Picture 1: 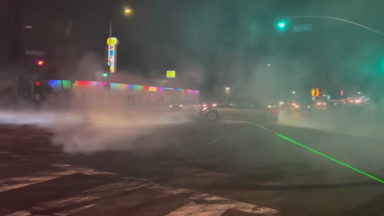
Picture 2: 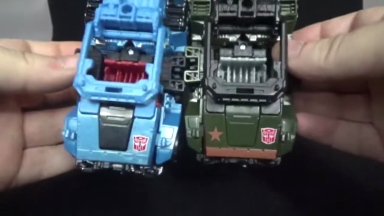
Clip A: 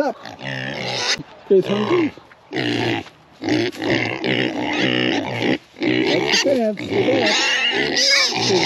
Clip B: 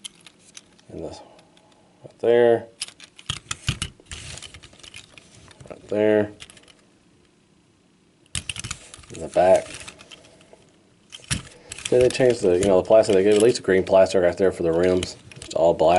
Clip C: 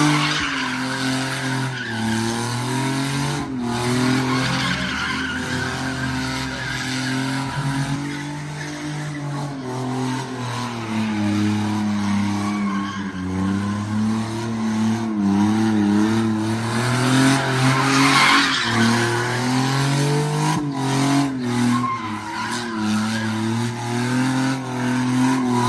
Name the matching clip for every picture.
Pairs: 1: C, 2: B